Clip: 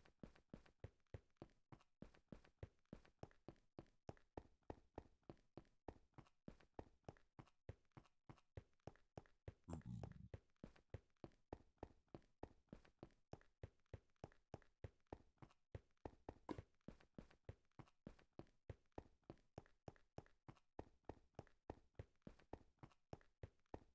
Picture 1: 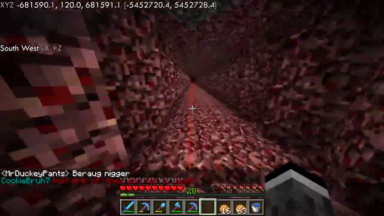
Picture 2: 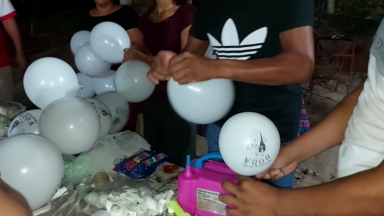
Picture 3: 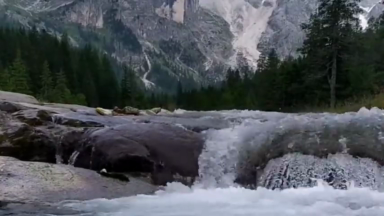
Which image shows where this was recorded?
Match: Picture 1